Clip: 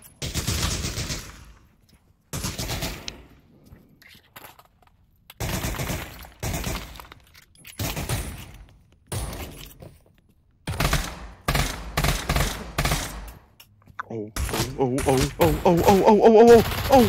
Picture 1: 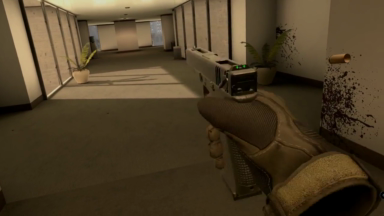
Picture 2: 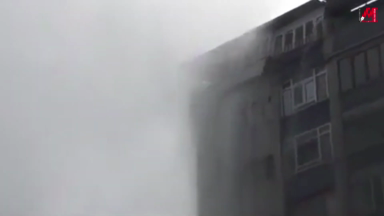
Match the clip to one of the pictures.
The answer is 1